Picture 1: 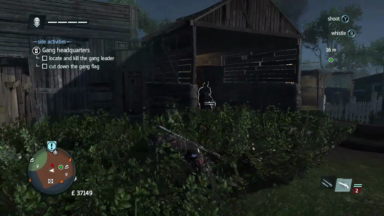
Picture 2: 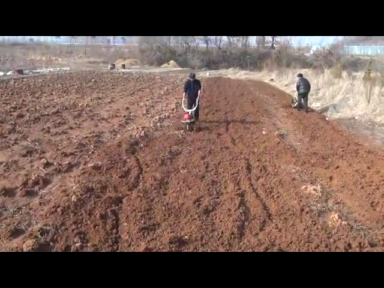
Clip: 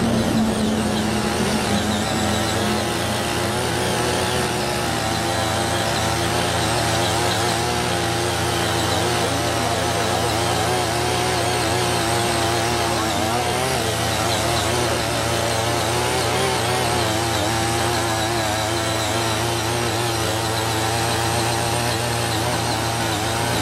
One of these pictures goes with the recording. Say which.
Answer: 2